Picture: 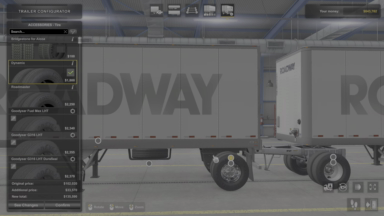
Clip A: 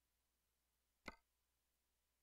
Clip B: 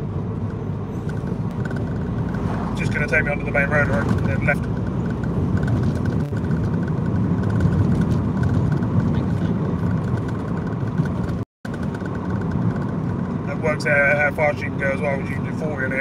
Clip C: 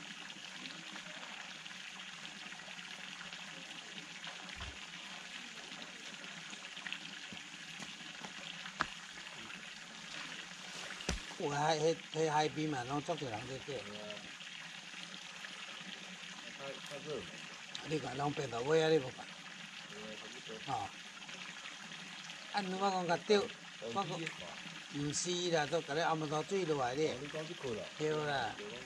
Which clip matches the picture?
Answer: A